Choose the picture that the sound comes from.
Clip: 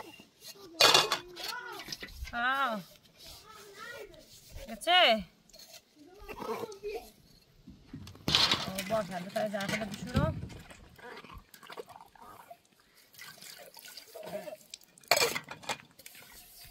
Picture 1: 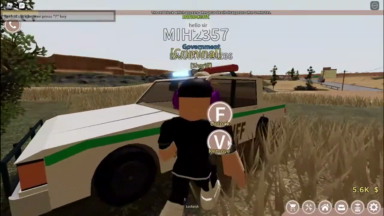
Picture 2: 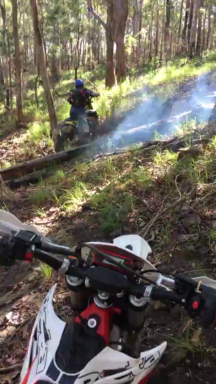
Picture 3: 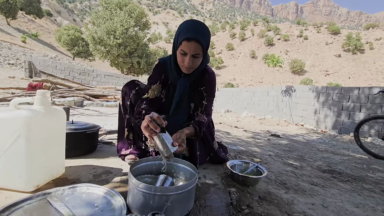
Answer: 3